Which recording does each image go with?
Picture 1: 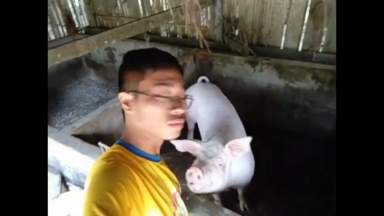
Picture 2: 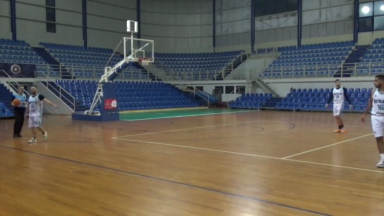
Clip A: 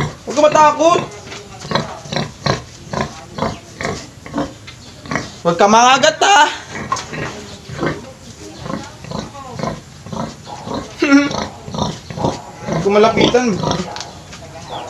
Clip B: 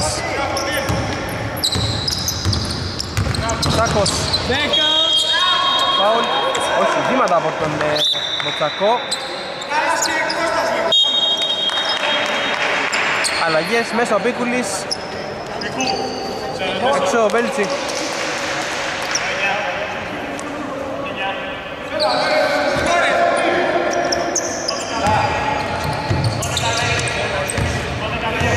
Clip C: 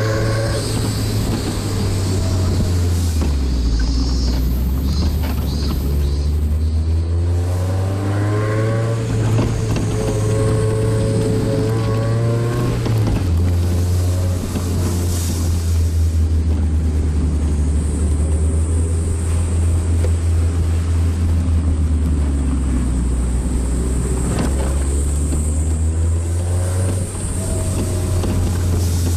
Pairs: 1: A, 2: B